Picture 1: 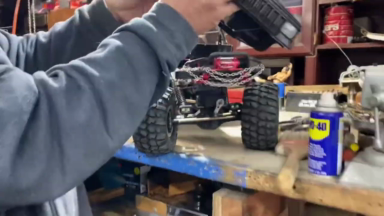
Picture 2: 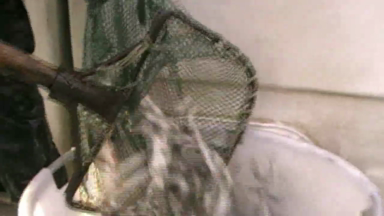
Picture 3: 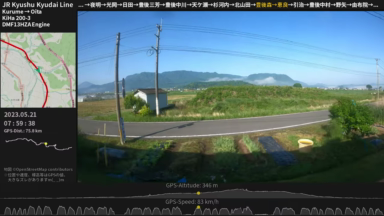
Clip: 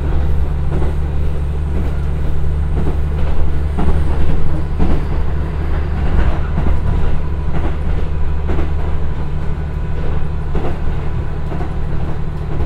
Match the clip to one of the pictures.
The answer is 3